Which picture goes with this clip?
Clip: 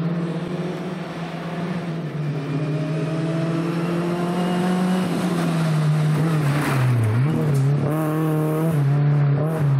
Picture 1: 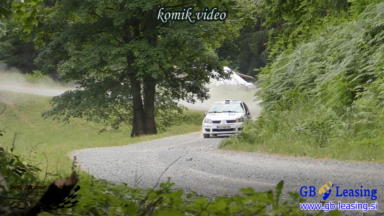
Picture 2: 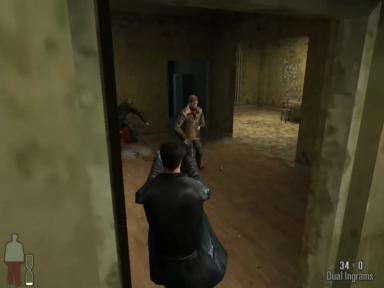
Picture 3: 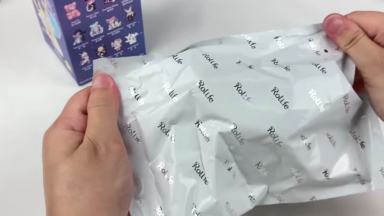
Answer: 1